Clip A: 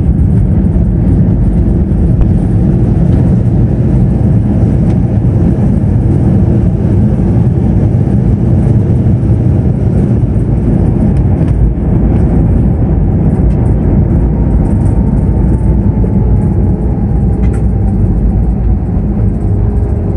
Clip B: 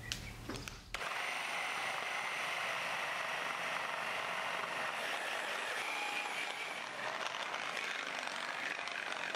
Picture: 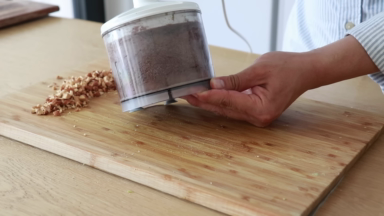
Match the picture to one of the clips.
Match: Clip B